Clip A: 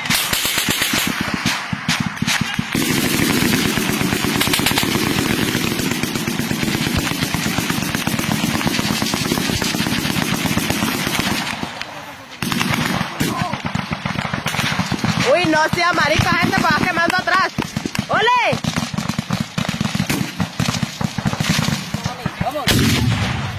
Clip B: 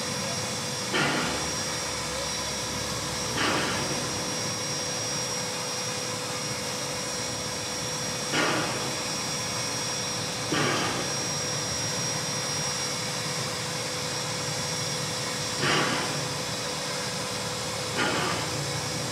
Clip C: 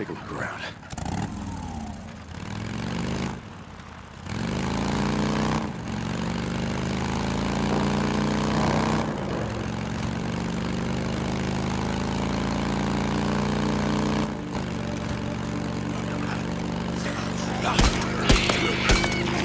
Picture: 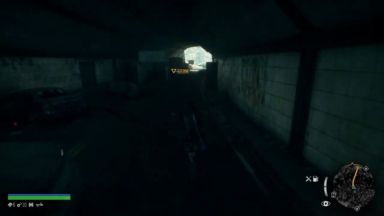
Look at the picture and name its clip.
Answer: C